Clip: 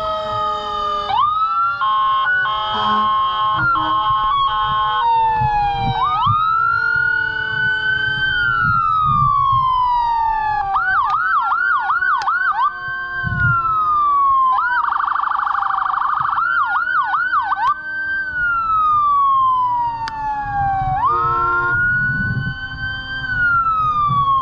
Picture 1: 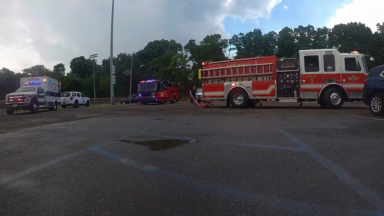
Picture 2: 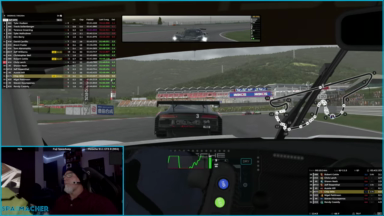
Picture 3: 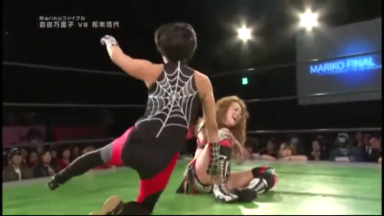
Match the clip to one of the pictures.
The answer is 1